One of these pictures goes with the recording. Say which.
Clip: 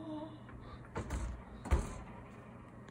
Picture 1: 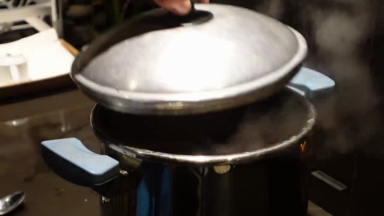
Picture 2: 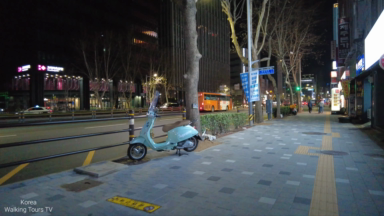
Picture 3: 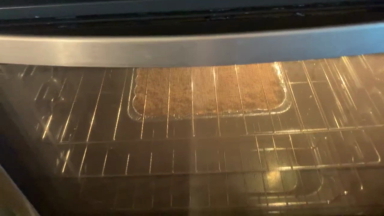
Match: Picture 3